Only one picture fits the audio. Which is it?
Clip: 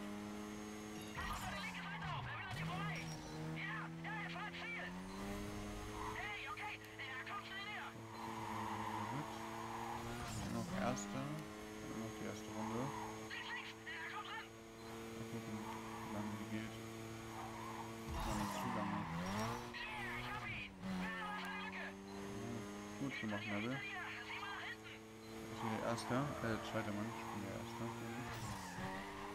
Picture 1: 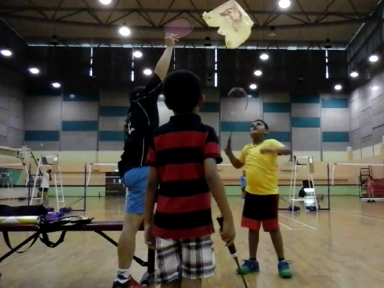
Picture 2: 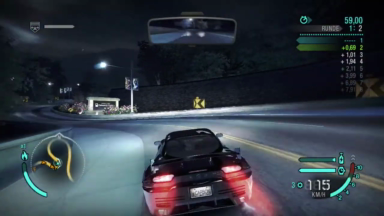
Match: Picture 2